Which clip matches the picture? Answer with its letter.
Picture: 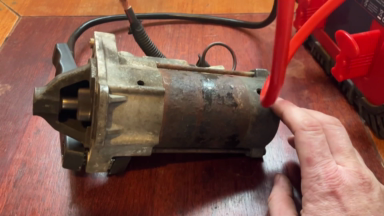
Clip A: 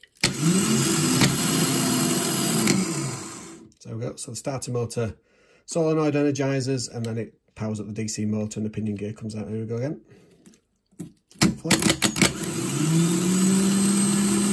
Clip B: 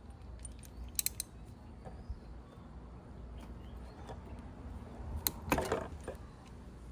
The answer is A